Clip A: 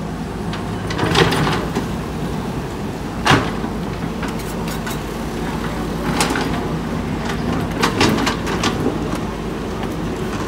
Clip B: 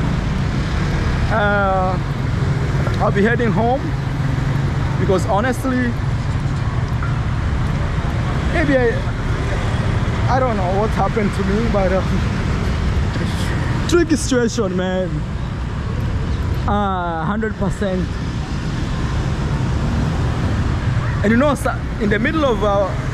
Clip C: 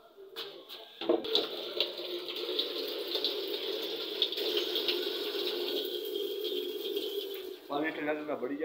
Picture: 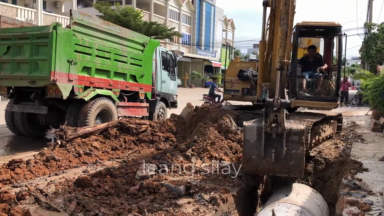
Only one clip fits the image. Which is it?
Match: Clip A